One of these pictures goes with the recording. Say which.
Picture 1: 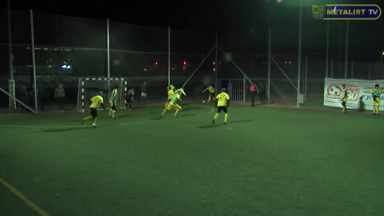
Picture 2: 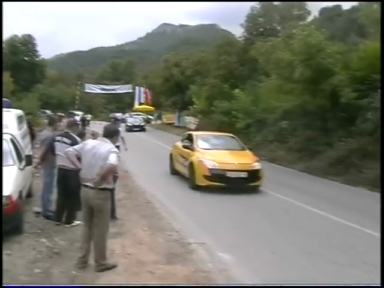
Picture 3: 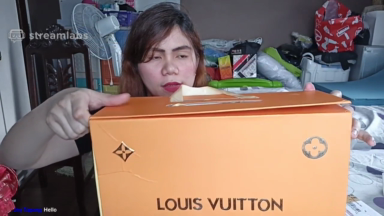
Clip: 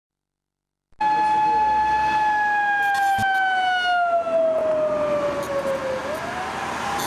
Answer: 2